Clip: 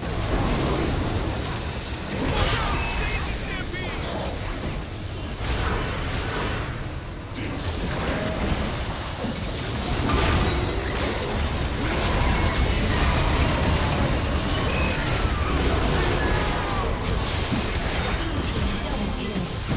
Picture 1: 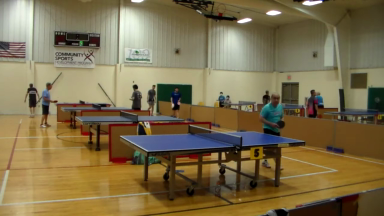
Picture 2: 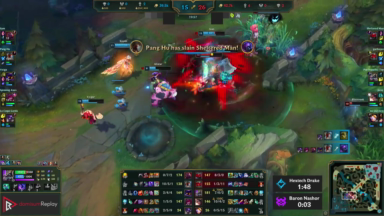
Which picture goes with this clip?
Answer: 2